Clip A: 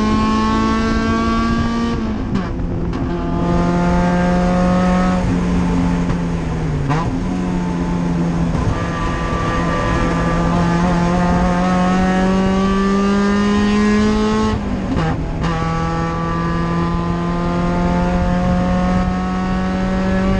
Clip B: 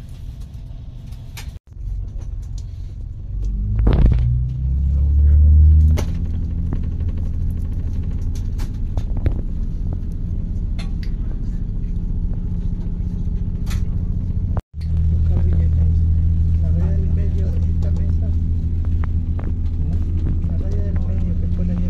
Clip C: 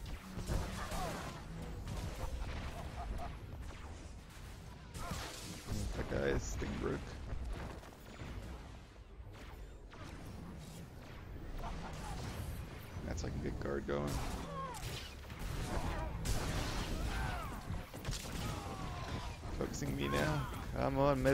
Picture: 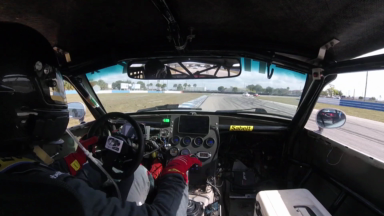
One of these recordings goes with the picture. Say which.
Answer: A